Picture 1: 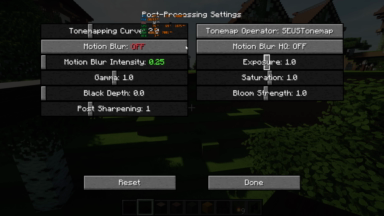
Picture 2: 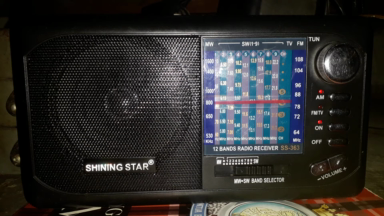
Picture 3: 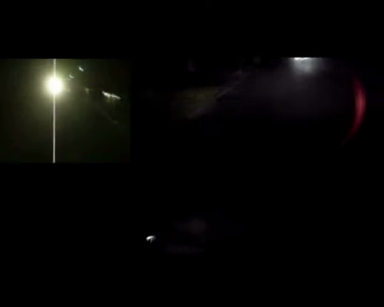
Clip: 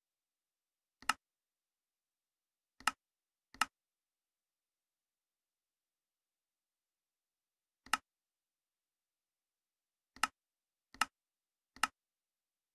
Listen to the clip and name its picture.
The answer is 1